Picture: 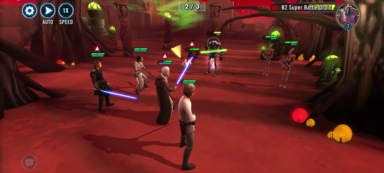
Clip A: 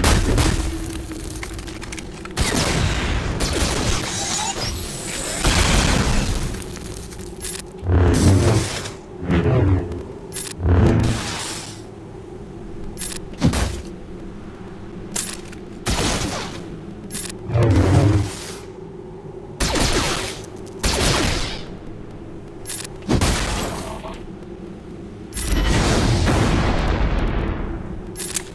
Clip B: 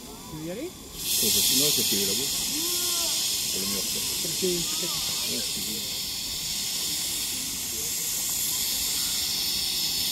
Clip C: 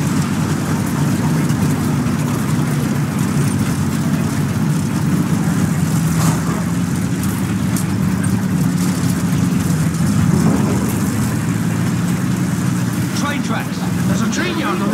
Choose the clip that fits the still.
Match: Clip A